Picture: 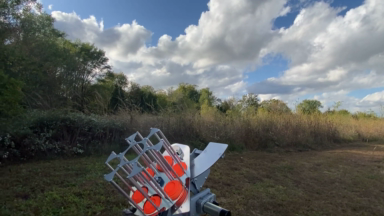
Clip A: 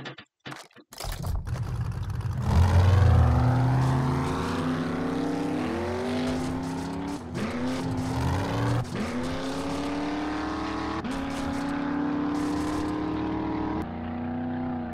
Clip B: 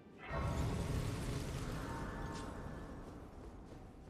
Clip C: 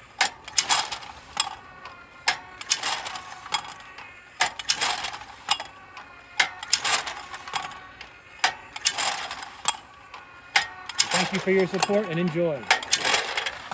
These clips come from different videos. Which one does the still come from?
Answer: C